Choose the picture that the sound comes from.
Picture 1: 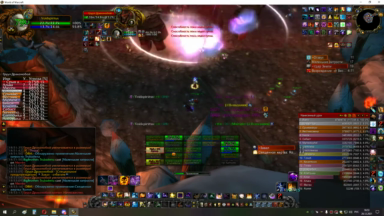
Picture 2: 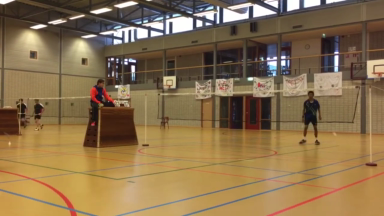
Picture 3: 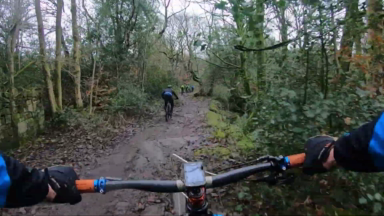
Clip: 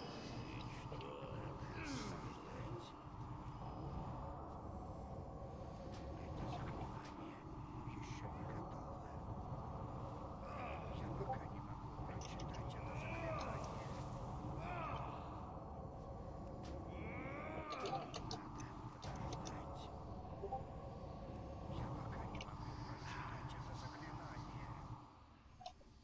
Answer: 1